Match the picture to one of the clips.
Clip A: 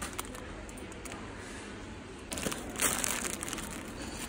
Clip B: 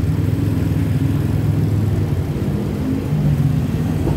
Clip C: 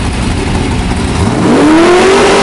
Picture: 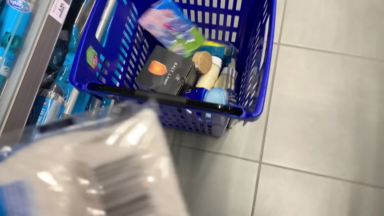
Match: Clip A